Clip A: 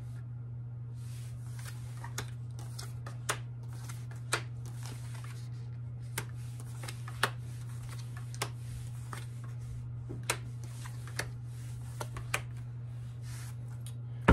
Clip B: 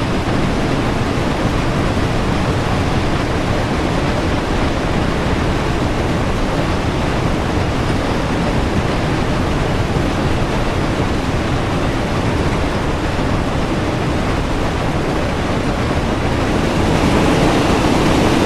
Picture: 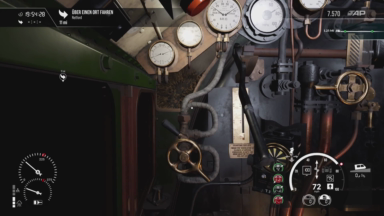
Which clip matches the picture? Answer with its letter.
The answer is B